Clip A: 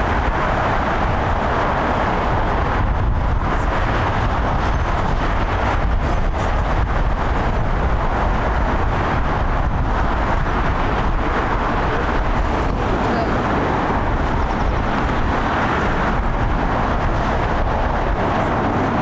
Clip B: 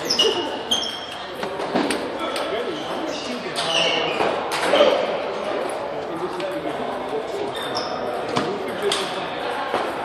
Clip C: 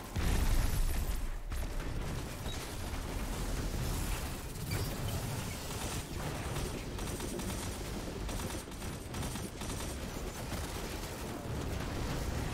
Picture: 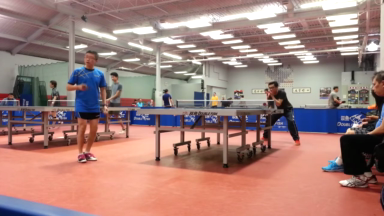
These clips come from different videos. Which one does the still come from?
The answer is B